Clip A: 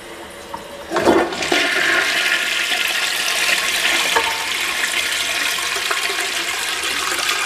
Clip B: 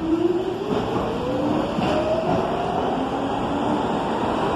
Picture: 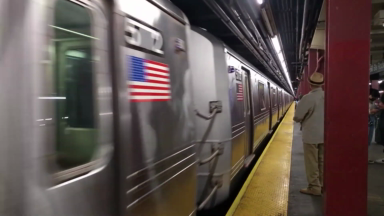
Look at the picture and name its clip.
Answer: B